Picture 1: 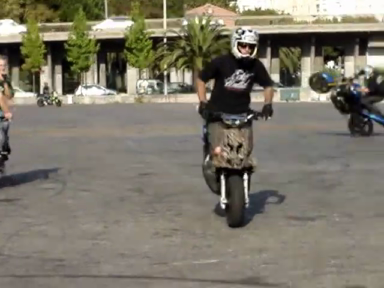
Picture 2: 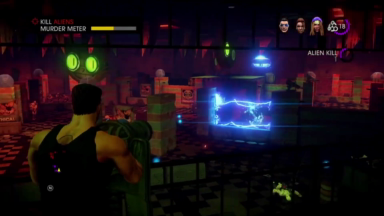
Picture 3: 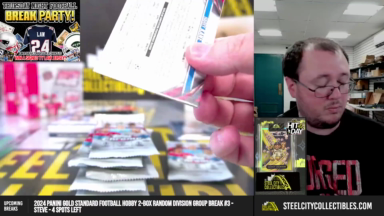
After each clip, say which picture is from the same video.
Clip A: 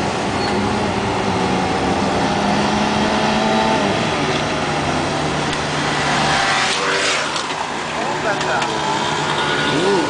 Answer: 1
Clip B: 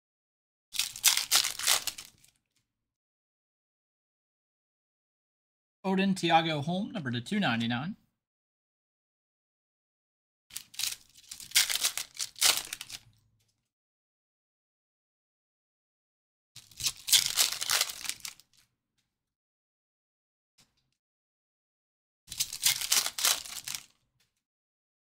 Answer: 3